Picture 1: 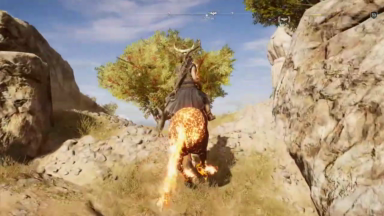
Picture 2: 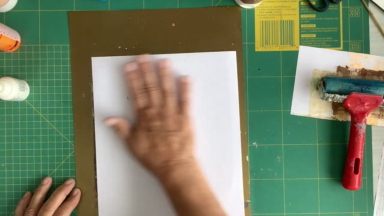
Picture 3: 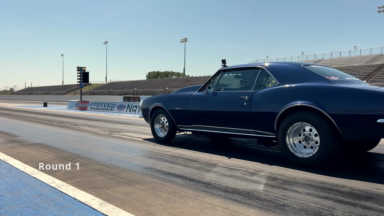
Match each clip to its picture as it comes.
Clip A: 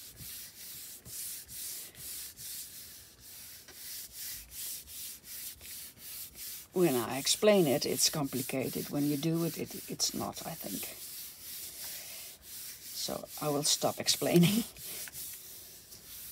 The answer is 2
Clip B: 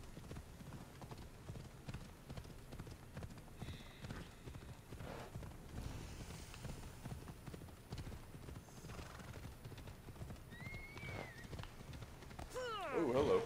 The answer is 1